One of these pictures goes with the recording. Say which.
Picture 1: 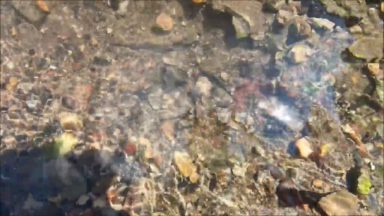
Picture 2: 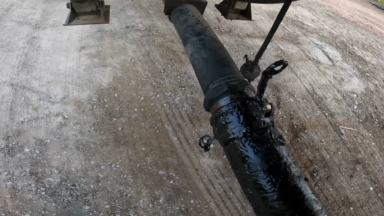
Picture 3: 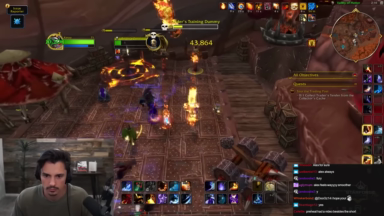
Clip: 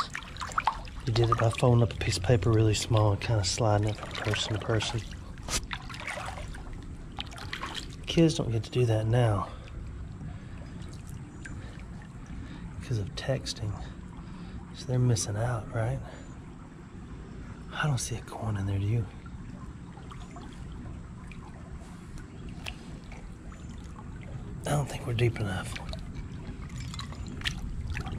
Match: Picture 1